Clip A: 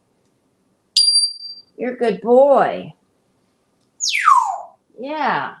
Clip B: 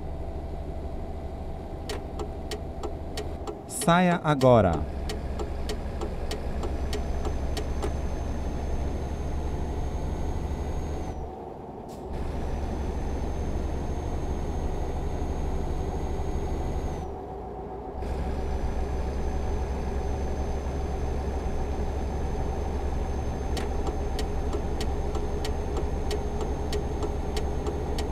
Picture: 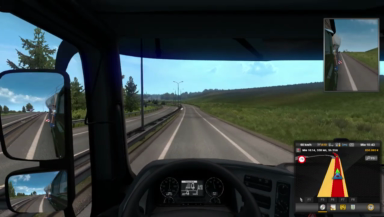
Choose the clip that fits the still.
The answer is B